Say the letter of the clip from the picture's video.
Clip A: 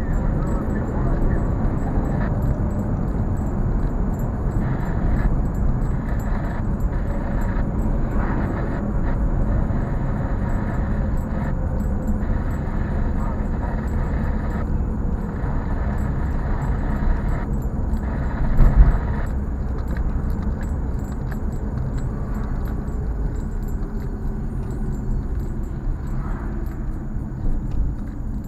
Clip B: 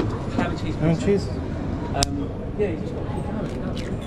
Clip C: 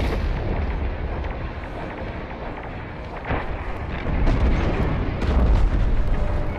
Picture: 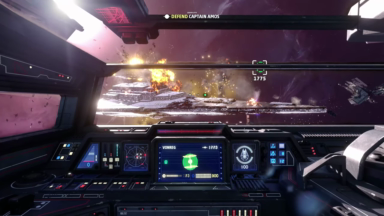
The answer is C